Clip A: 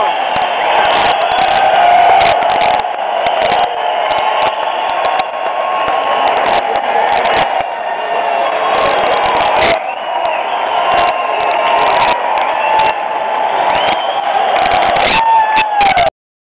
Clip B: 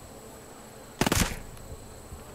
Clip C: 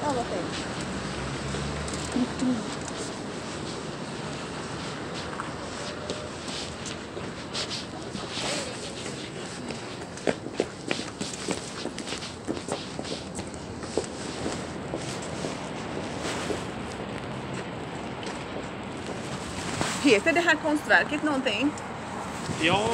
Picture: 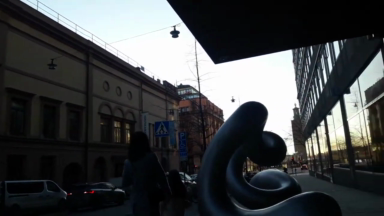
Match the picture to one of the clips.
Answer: C